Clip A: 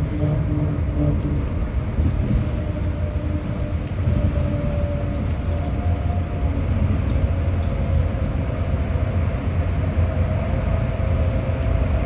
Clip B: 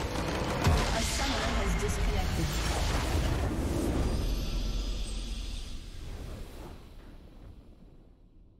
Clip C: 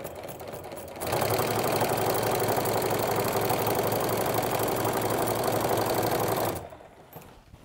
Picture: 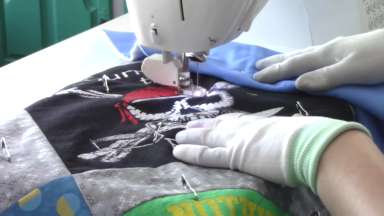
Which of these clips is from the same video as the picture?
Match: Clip C